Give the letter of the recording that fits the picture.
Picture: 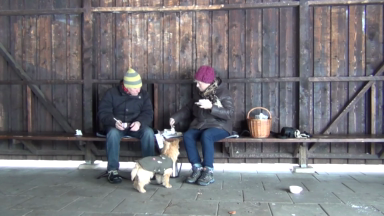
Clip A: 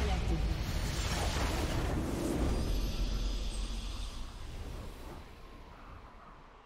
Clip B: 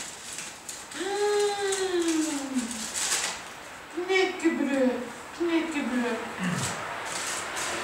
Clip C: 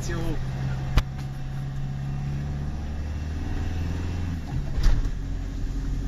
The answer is B